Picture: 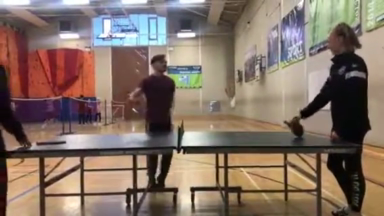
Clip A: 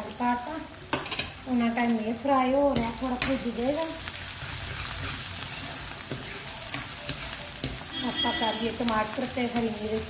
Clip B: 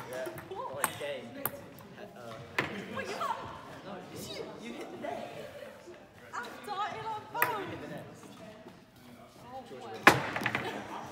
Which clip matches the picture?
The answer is B